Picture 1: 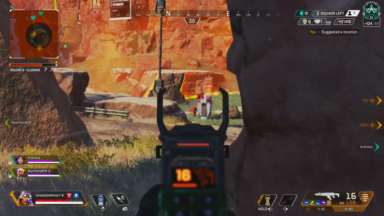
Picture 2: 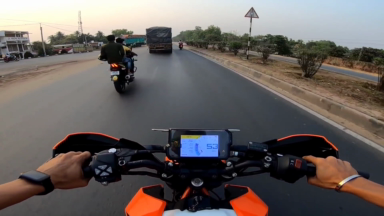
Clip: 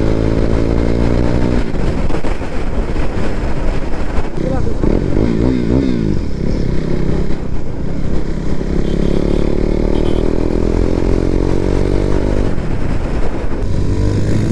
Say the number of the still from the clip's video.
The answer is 2